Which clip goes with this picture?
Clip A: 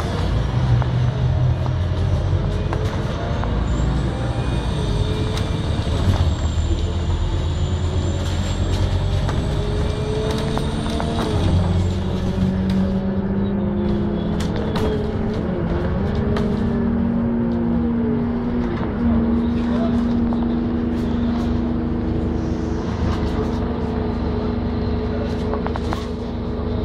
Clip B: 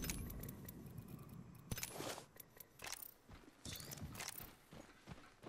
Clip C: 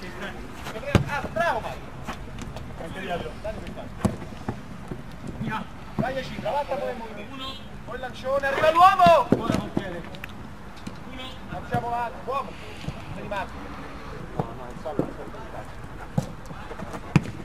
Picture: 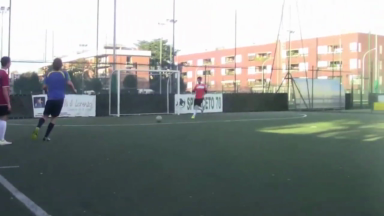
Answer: C